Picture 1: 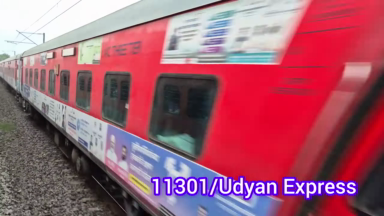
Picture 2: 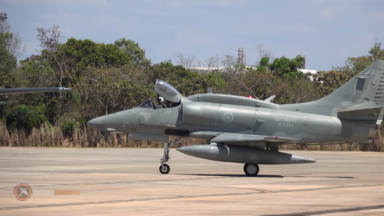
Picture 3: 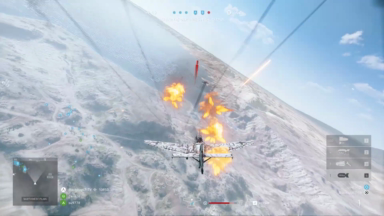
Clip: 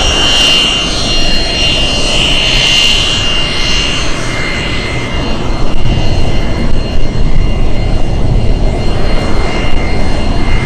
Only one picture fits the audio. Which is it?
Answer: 2